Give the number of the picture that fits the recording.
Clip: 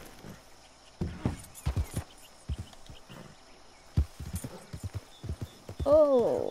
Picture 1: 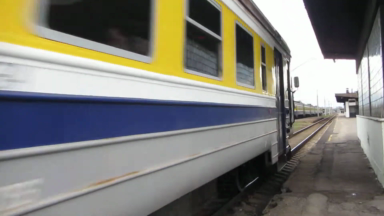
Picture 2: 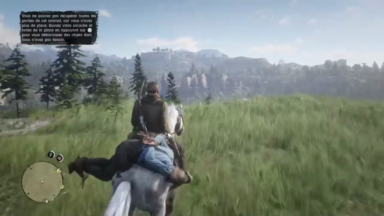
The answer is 2